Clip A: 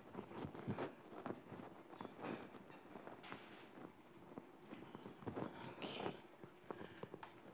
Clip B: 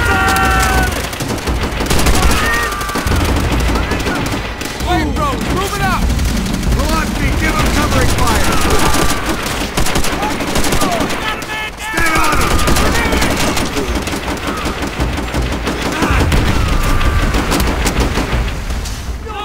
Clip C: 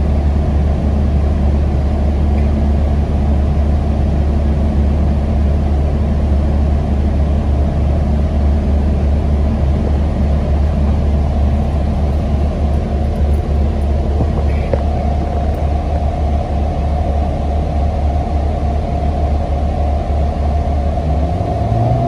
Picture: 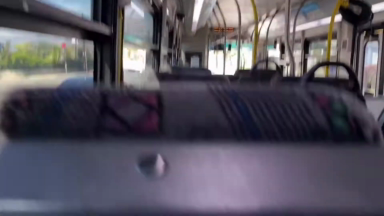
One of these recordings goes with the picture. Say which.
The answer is C